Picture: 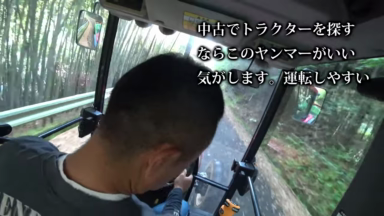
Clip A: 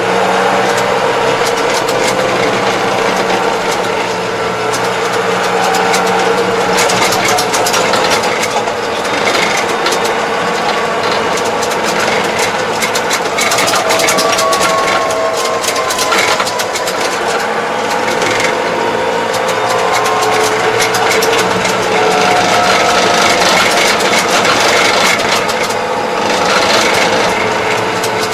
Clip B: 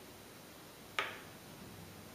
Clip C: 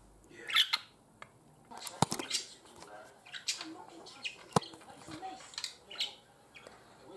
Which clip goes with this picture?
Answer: A